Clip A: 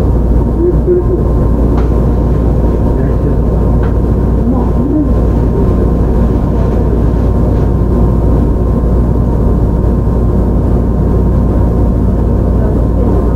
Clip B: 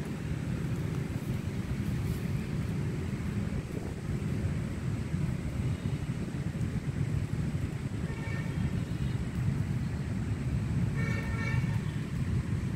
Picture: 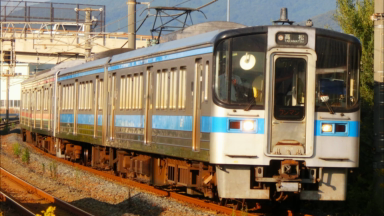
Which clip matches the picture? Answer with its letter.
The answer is A